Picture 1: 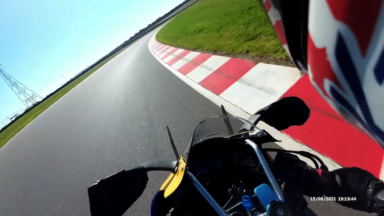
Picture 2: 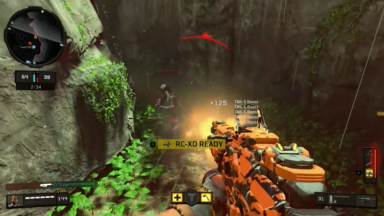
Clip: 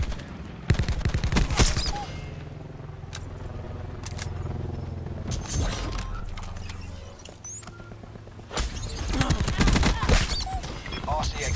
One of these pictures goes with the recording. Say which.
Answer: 2